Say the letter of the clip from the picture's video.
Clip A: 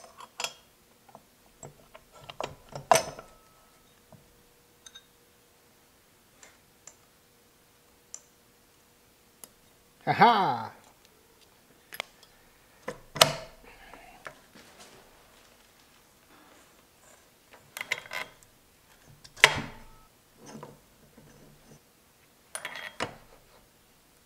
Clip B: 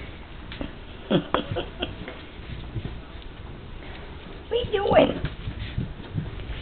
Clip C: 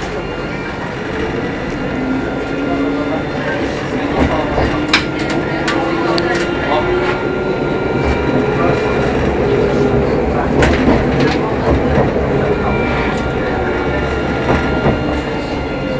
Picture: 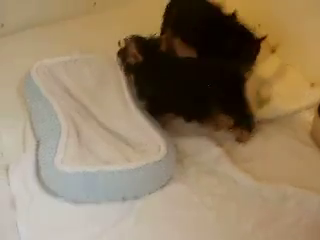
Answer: B